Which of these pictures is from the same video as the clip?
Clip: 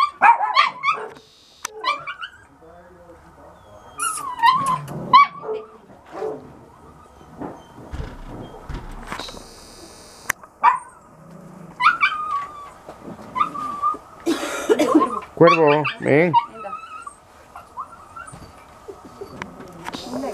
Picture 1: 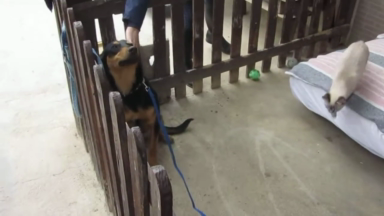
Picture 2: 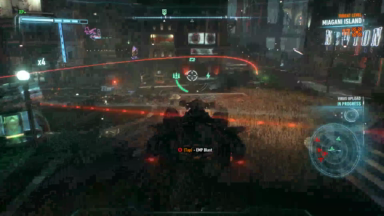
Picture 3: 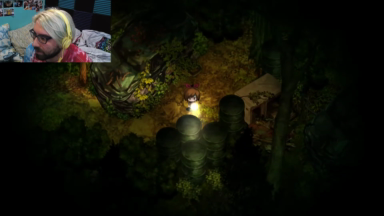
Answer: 1